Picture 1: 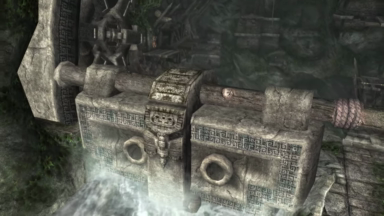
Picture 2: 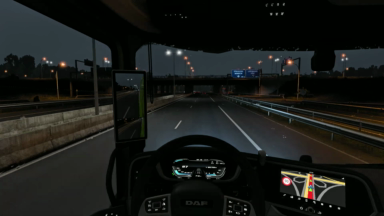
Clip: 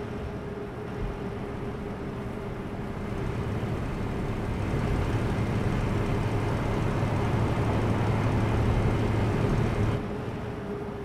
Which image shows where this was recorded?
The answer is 2